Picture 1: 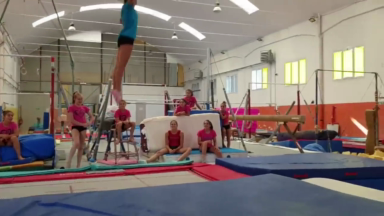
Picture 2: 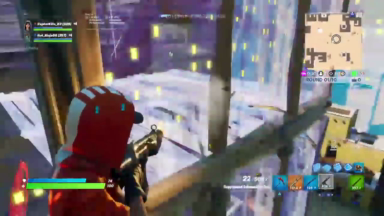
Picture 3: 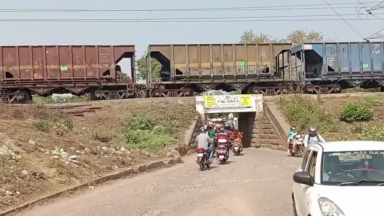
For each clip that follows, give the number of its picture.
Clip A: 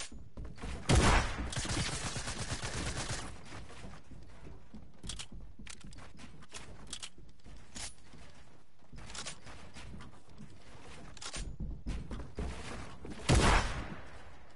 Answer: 2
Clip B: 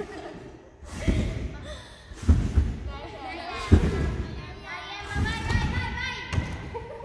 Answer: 1